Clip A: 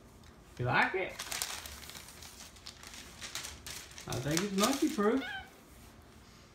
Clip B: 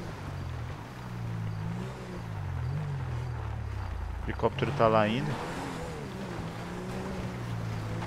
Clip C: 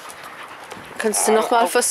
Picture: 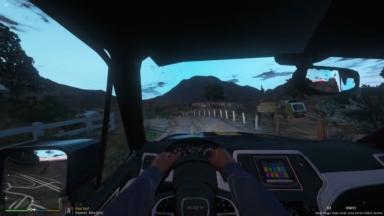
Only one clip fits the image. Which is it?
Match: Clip B